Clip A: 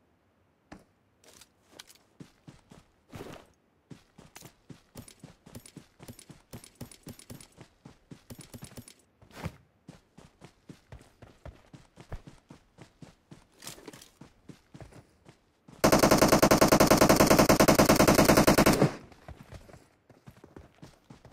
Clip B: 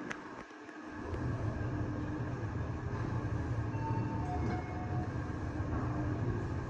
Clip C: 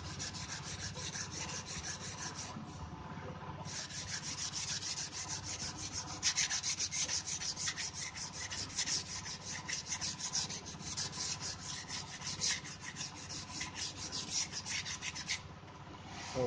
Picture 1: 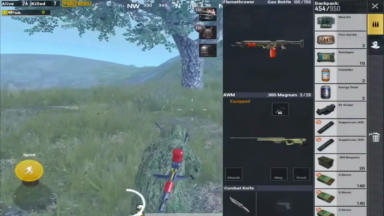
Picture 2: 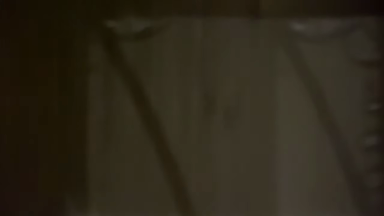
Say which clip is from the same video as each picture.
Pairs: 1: A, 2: B